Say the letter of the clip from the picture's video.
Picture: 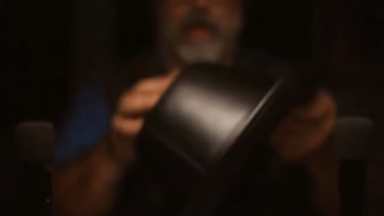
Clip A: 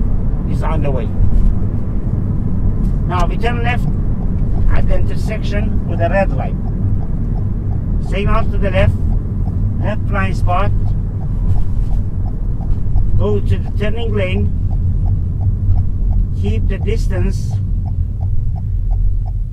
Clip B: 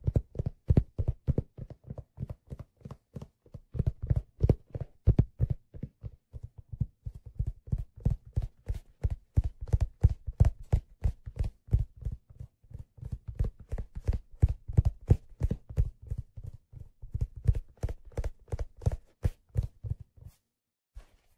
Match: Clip B